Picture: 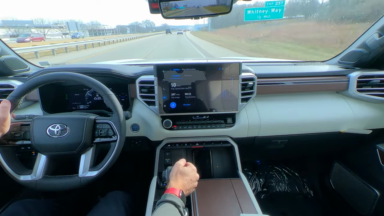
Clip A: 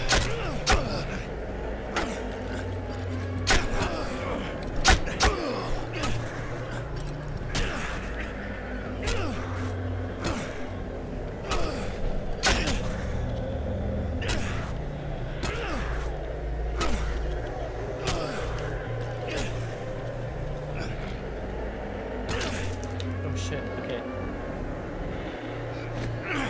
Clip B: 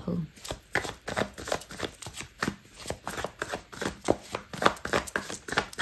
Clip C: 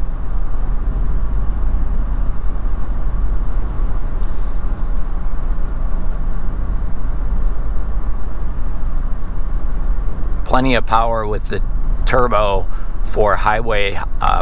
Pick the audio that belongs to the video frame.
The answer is C